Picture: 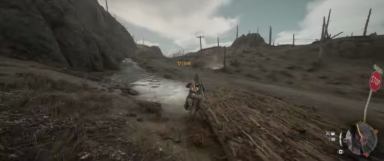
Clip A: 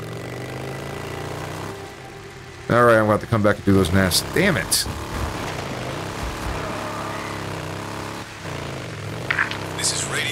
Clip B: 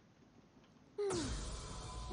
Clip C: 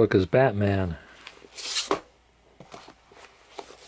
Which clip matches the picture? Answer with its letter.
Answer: A